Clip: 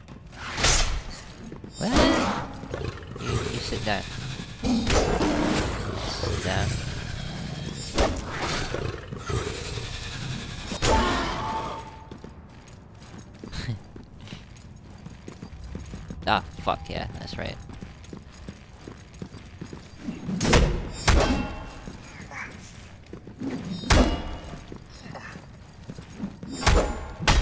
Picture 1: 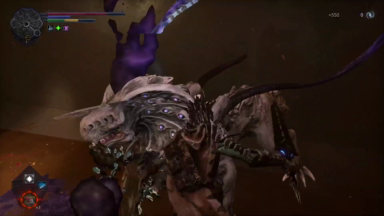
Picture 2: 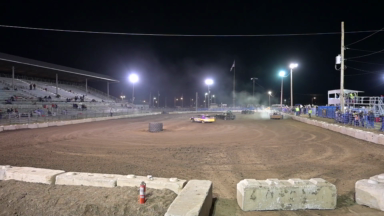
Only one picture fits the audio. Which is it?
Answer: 1